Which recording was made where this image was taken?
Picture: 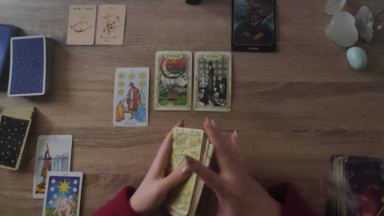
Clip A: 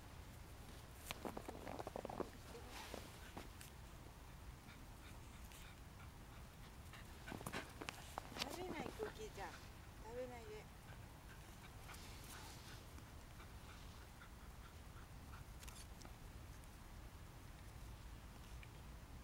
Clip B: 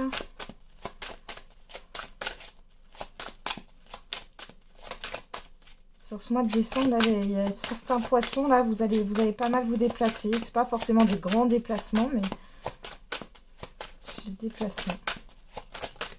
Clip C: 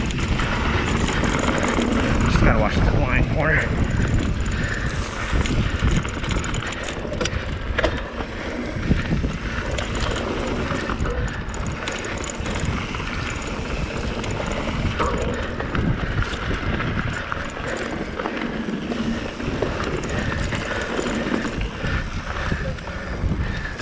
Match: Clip B